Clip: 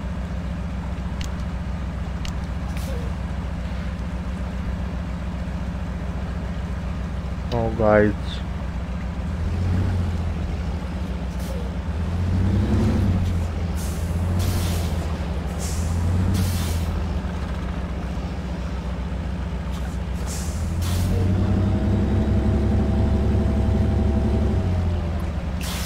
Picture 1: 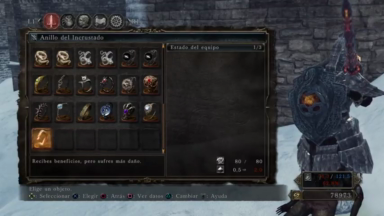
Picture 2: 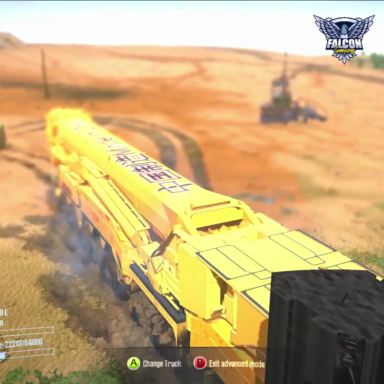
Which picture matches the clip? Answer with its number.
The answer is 2